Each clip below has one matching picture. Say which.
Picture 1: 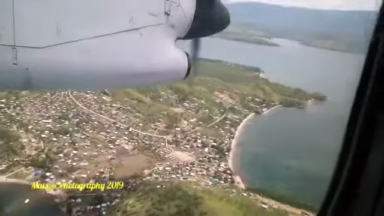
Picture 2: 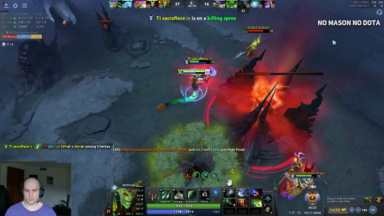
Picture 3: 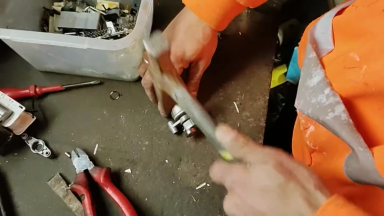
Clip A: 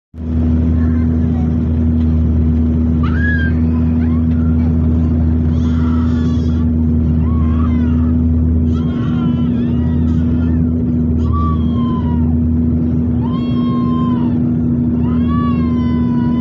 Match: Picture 1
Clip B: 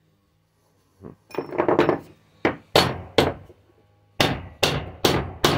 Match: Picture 3